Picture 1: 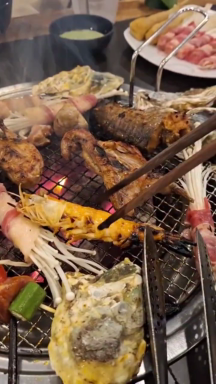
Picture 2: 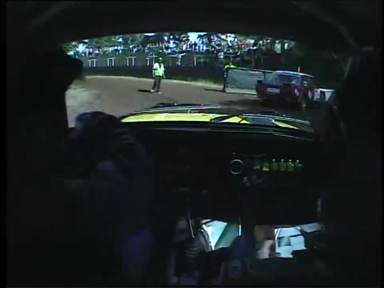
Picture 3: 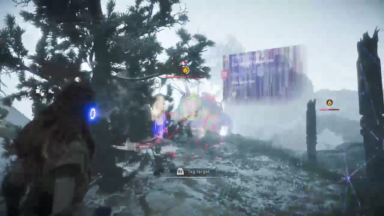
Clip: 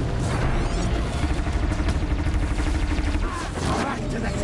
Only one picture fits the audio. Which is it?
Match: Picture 3